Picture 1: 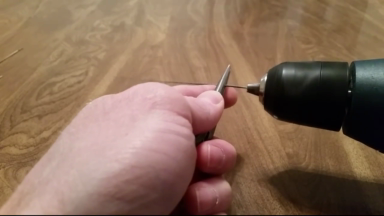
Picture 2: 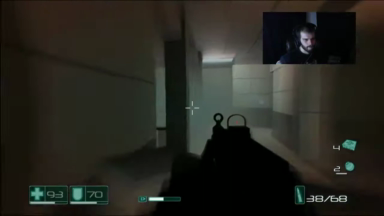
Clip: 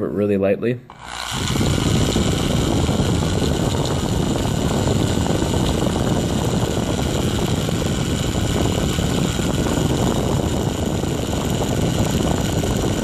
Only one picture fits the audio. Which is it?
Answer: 1